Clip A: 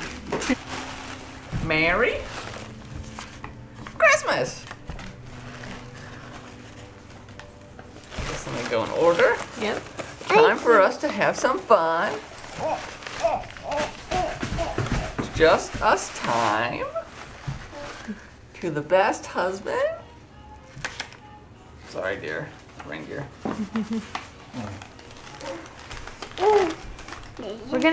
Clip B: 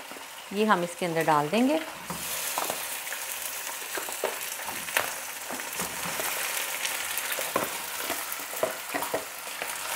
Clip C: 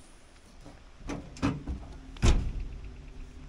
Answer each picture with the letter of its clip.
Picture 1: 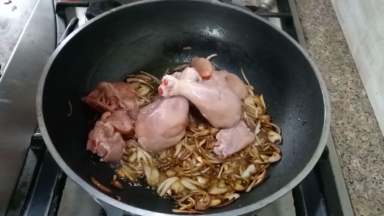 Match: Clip B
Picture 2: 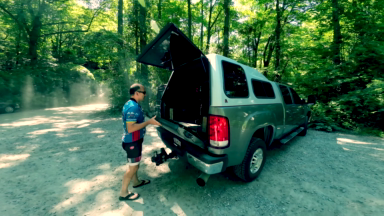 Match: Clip C